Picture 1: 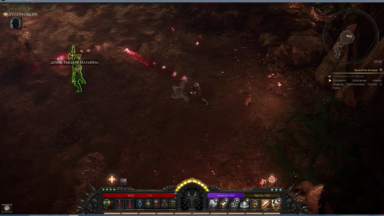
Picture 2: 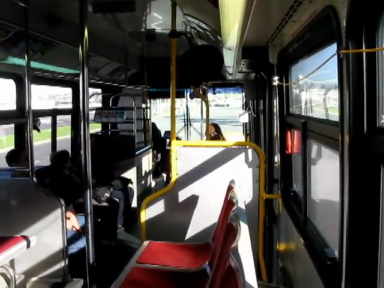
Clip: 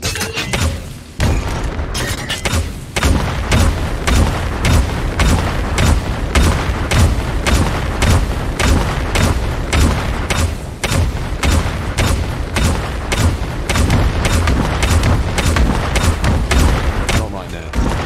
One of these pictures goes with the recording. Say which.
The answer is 1